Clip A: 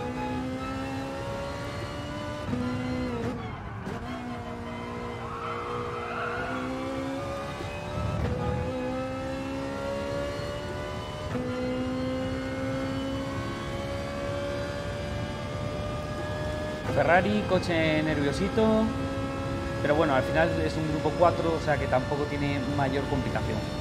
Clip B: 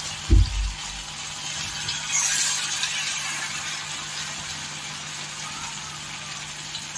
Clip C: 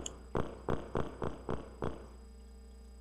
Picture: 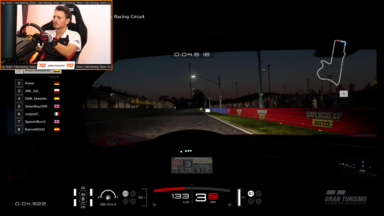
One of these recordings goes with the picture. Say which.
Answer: A